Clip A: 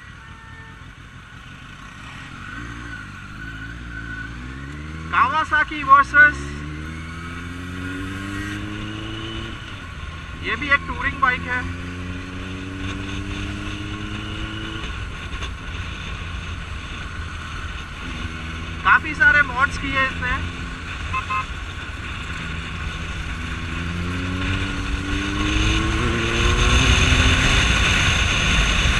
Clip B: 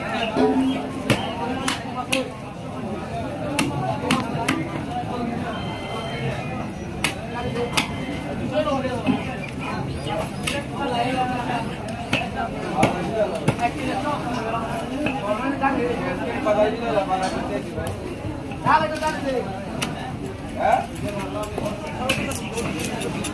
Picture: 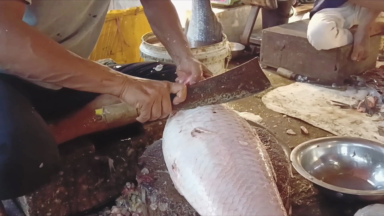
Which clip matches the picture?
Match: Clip B